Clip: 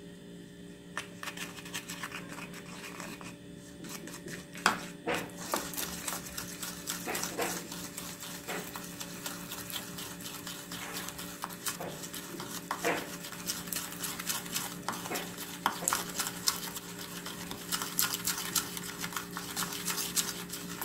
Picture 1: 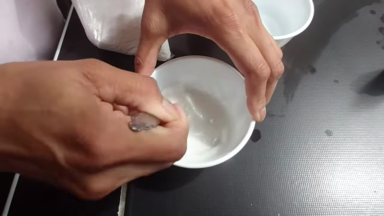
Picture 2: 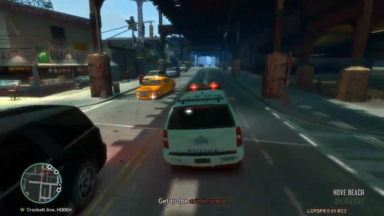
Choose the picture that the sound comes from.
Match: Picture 1